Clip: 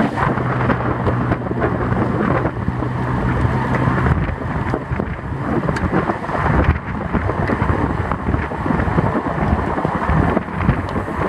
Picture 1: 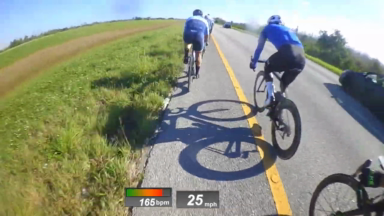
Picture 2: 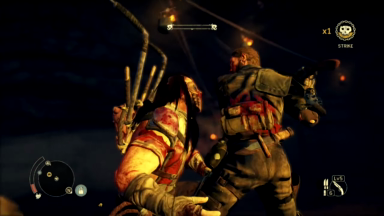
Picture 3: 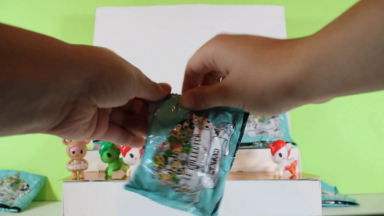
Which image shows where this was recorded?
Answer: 1